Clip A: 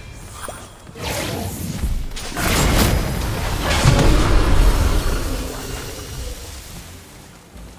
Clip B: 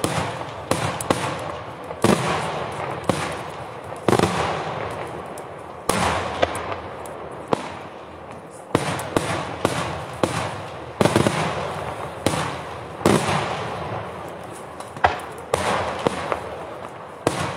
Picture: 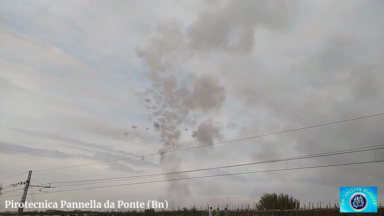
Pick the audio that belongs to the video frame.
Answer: B